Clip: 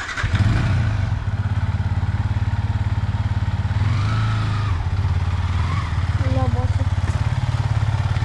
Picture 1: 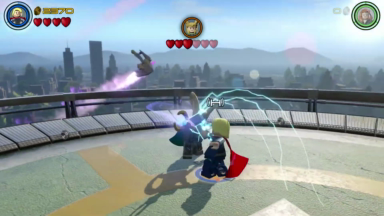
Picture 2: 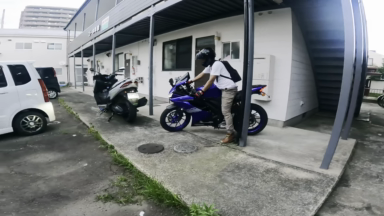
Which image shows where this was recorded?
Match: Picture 2